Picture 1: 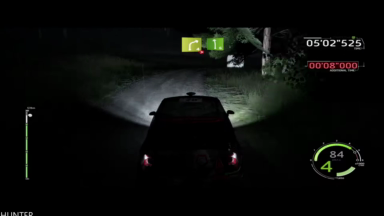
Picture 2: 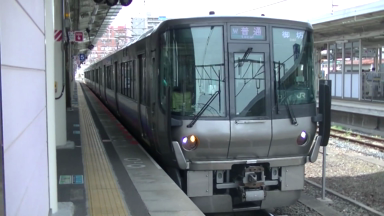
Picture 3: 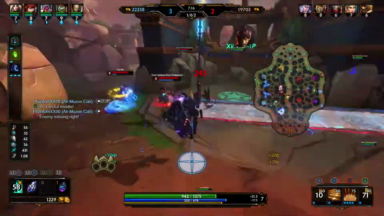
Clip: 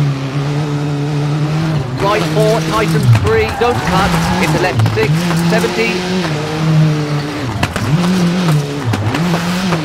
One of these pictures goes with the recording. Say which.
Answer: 1